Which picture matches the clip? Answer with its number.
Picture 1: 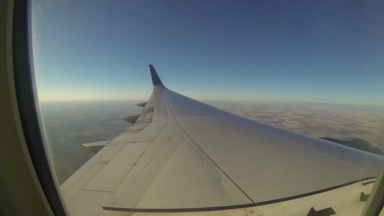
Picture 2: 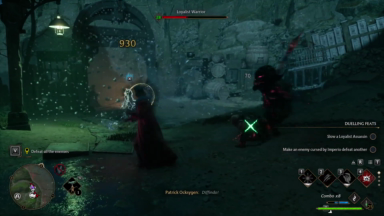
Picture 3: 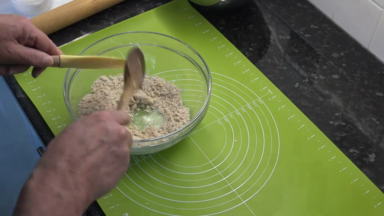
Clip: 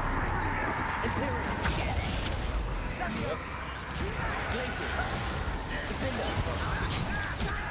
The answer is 2